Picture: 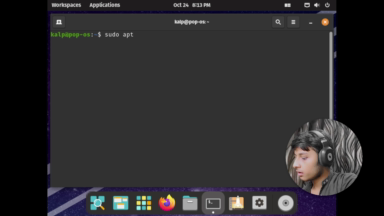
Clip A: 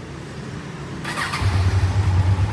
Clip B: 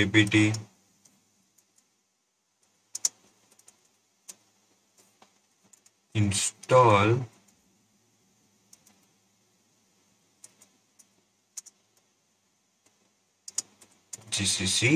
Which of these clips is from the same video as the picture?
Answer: B